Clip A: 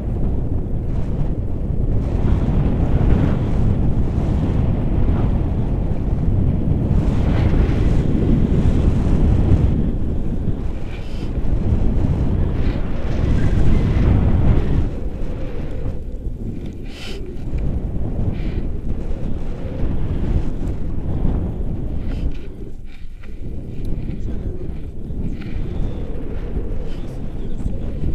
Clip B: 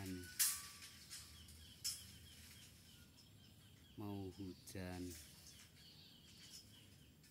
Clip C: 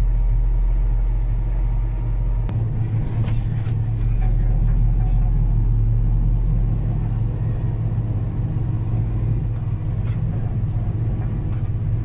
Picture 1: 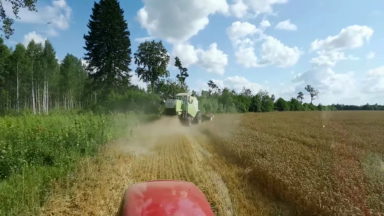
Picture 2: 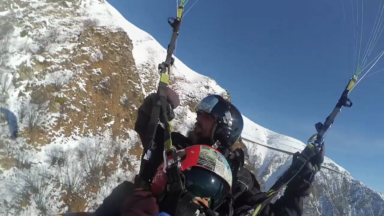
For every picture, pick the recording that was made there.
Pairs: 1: C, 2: A